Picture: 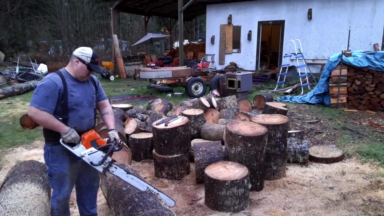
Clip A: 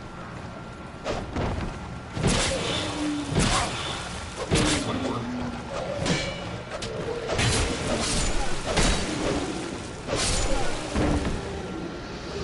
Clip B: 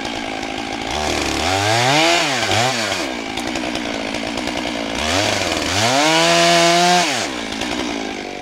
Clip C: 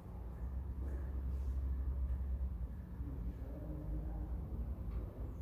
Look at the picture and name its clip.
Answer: B